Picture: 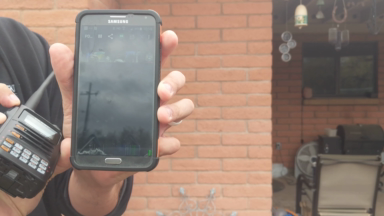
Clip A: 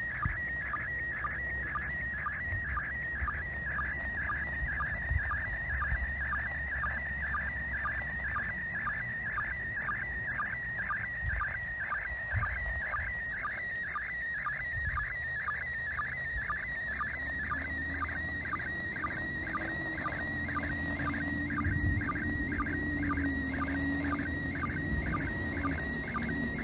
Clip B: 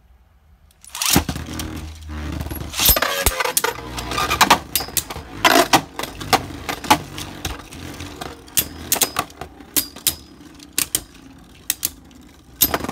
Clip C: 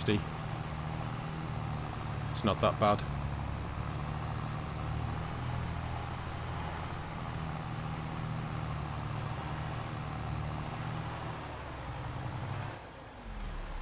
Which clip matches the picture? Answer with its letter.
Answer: A